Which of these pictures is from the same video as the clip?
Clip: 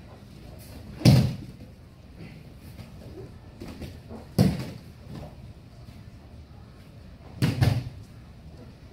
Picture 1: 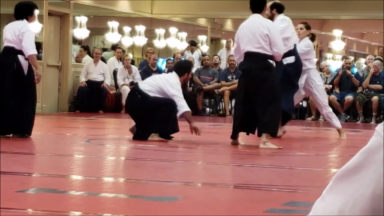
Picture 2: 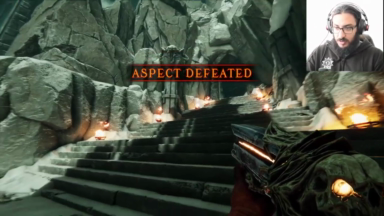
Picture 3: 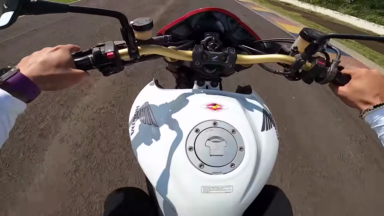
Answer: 1